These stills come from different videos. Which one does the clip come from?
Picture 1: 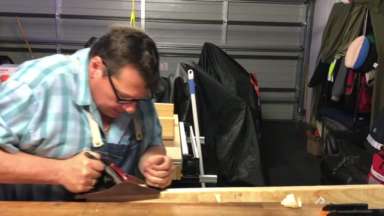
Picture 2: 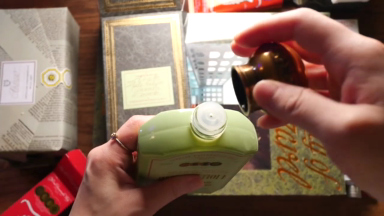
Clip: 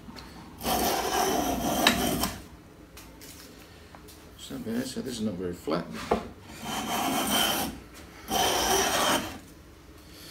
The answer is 1